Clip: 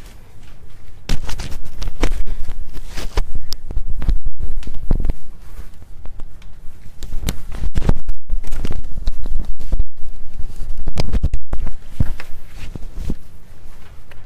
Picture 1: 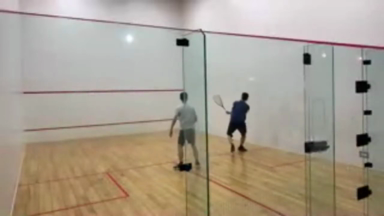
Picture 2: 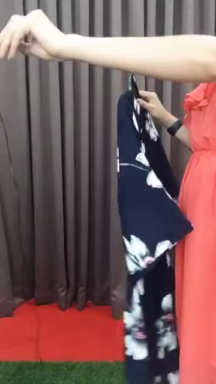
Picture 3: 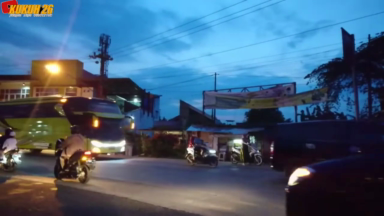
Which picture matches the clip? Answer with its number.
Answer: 2